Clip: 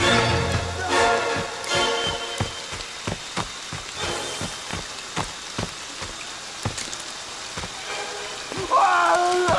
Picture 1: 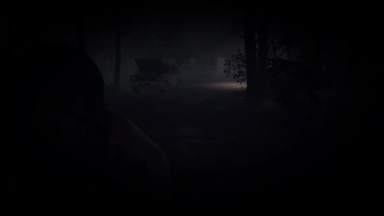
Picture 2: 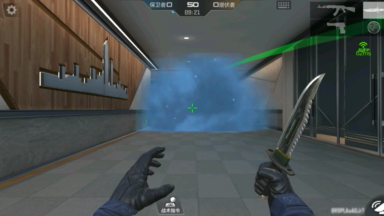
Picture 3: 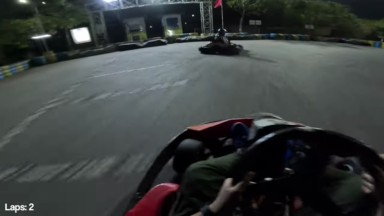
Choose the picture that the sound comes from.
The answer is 1